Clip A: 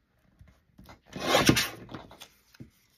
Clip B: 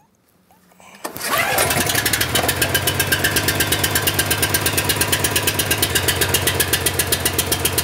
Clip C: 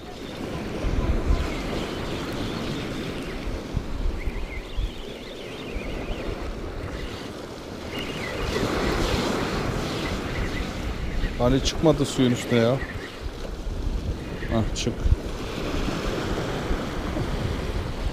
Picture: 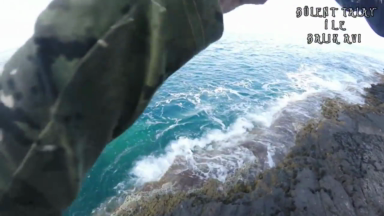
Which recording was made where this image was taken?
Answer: C